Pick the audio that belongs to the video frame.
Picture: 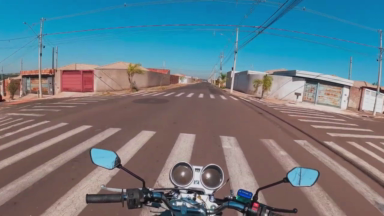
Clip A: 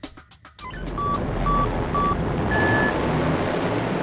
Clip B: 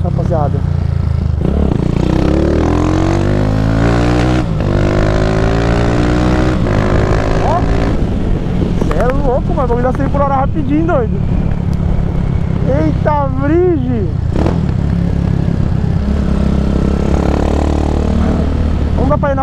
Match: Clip B